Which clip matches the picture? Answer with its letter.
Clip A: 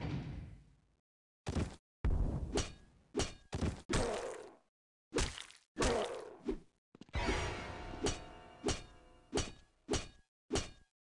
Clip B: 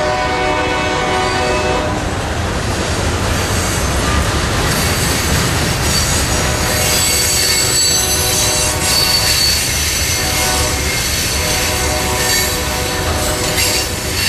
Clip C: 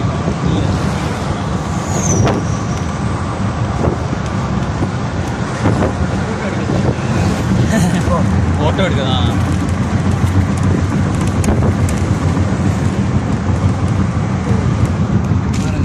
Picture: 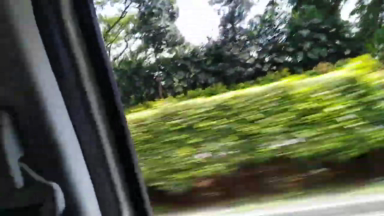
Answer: C